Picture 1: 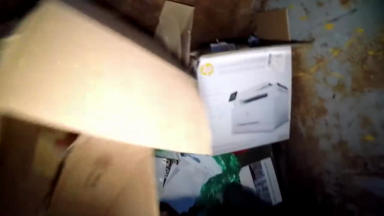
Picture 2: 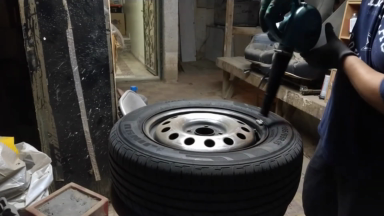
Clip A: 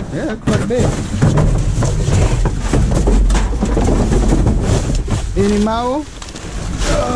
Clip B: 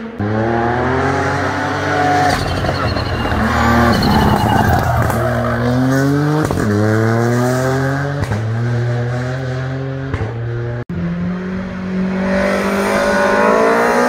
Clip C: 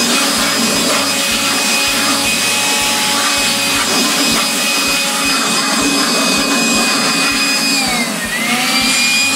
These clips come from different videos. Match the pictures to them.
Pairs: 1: A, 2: C